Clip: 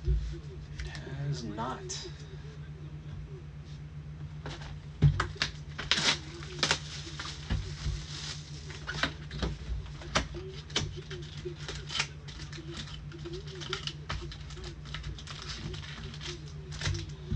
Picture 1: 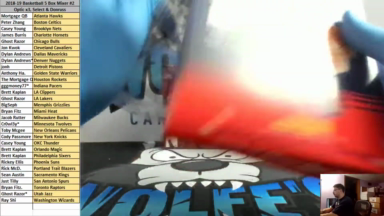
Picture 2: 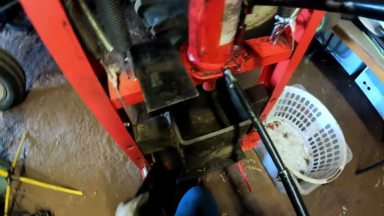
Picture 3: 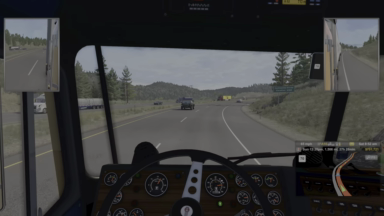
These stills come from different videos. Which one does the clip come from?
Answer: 1